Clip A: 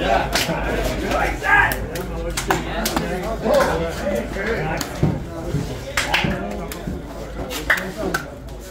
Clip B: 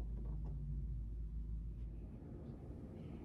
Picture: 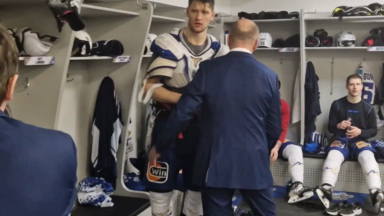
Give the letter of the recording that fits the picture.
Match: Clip A